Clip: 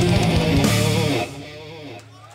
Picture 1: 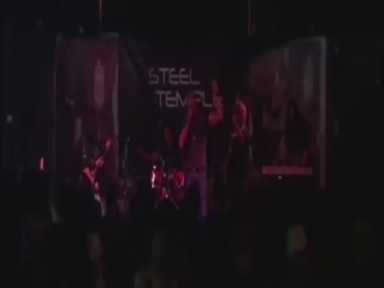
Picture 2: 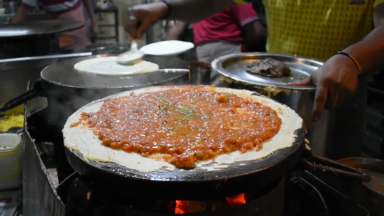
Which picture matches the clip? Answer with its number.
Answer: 1